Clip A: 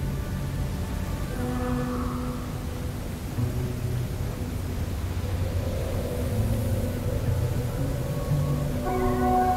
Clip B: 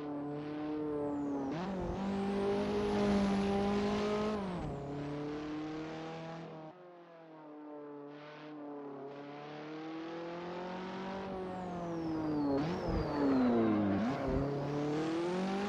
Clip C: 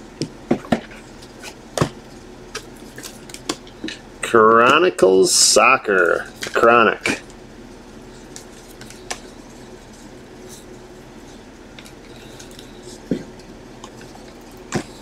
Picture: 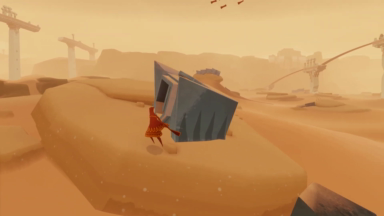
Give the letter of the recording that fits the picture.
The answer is A